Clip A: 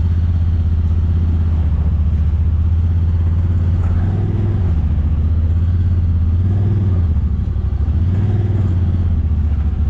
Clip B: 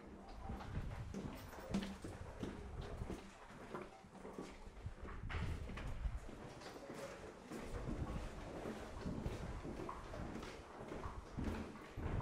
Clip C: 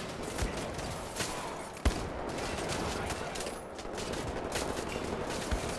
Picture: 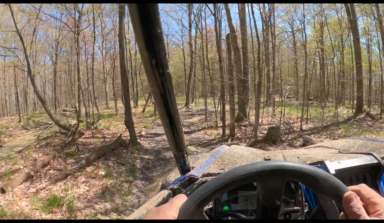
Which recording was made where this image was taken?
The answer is A